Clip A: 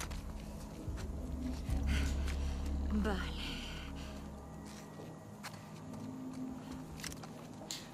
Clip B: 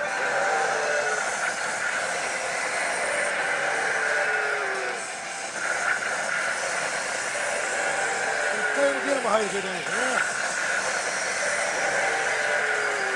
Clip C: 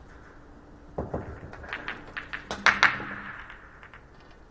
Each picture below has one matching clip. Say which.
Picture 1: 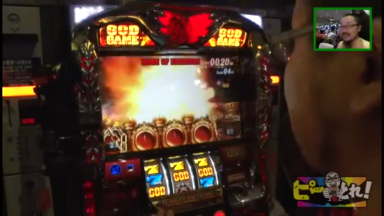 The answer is B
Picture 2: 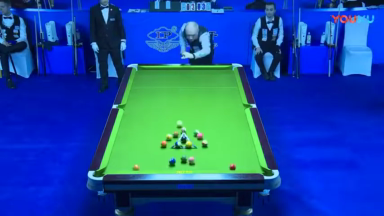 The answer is C